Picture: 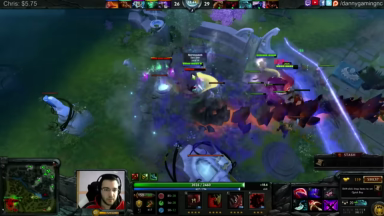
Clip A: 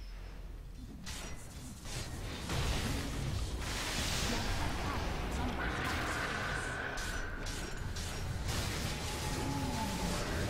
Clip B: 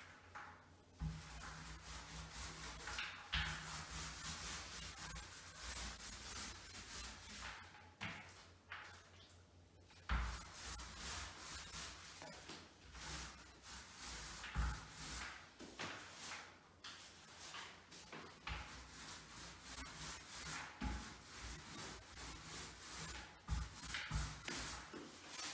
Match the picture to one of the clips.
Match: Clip A